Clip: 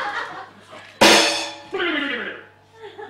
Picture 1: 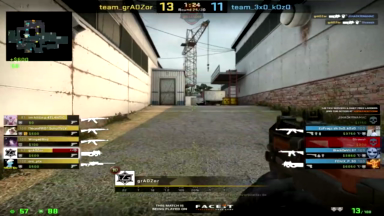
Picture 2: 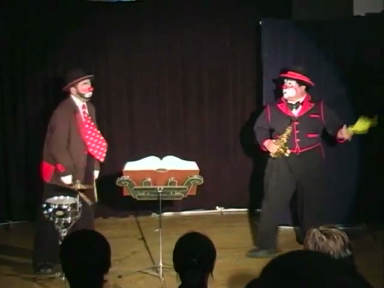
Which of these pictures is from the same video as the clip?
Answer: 2